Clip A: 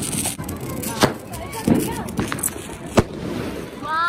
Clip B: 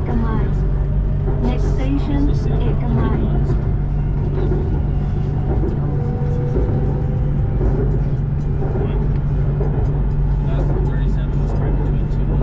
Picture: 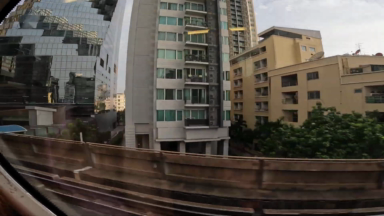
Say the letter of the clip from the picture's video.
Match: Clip B